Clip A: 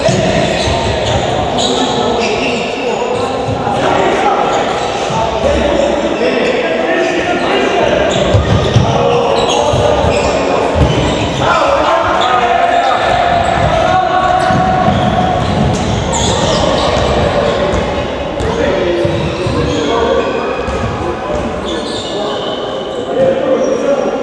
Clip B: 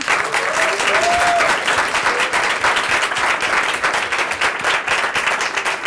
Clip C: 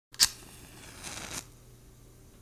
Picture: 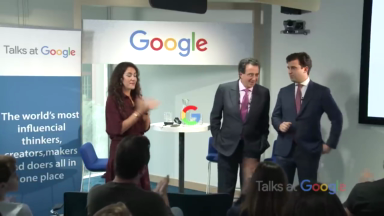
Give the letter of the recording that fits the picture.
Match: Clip B